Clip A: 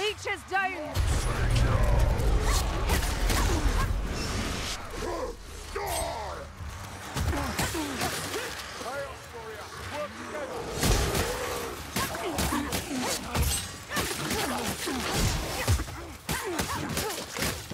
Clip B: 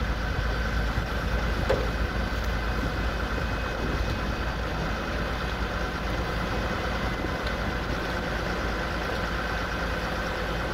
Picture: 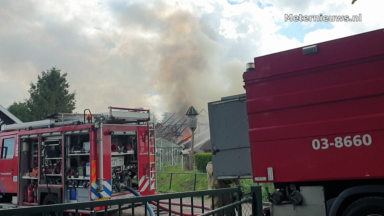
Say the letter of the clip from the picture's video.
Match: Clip B